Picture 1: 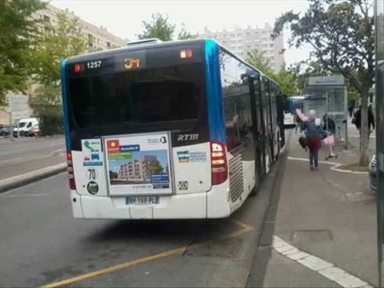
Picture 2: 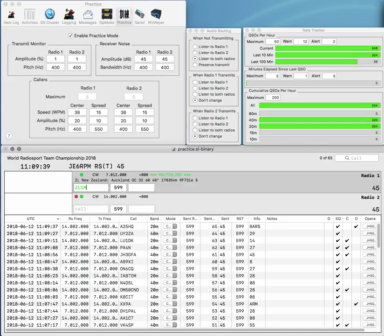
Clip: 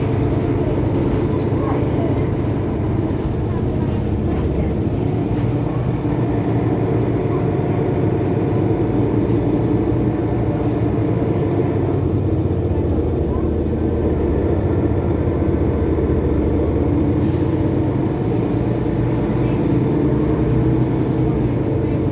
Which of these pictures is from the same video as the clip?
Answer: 1